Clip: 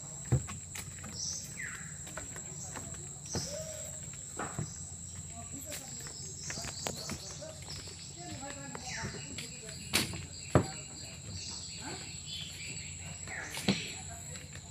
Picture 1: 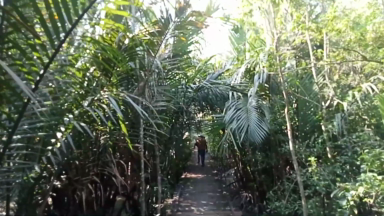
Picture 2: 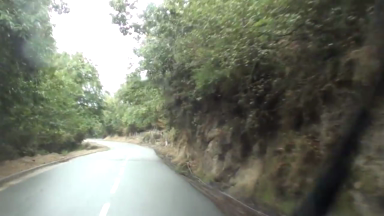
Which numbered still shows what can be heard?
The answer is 1